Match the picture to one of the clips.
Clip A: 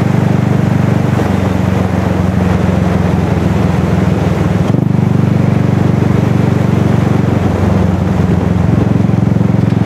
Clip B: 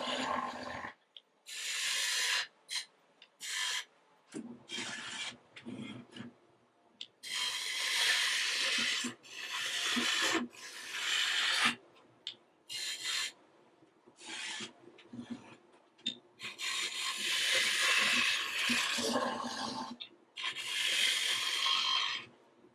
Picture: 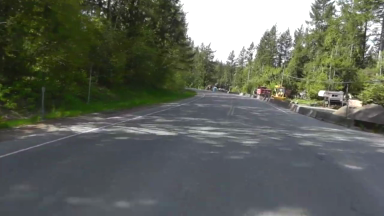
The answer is A